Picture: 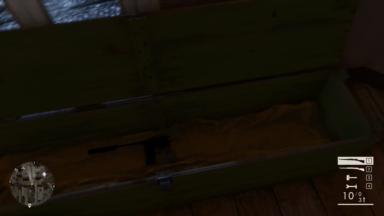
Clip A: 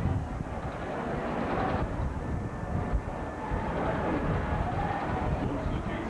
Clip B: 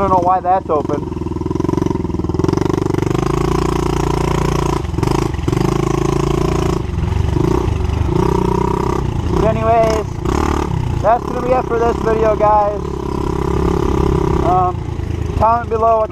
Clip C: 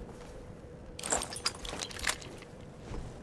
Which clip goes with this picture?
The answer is C